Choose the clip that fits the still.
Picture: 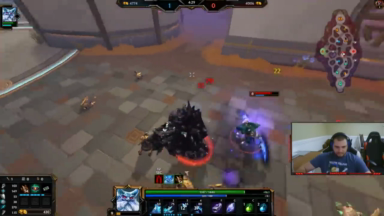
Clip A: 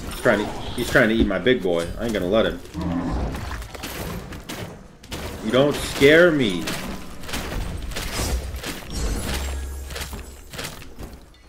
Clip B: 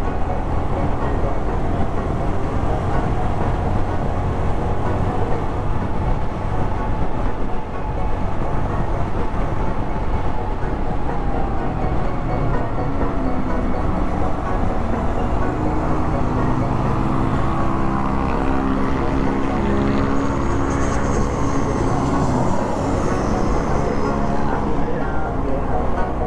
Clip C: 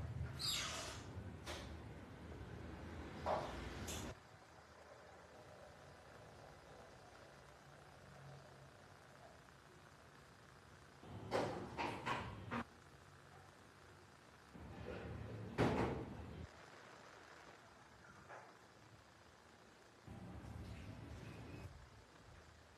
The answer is A